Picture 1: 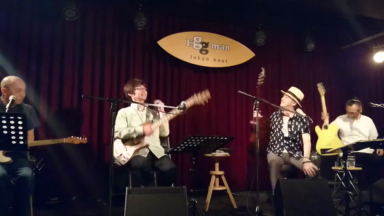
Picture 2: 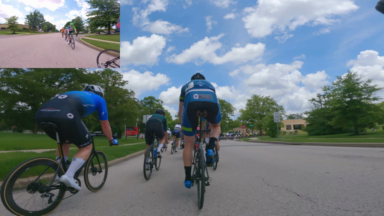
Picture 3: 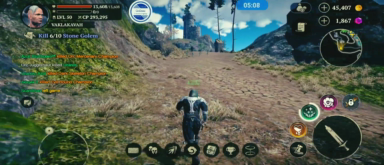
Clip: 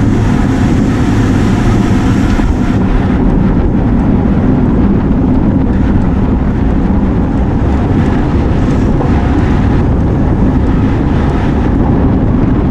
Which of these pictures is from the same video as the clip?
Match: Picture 2